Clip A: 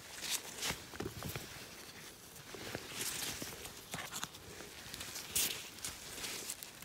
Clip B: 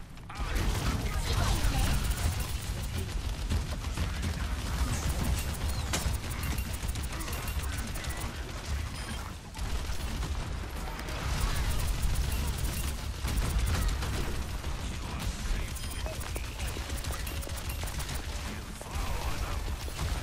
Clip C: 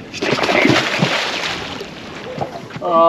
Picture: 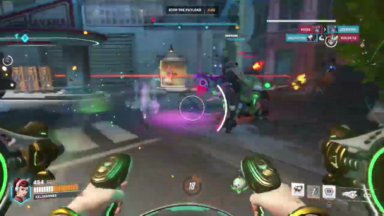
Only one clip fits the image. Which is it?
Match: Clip B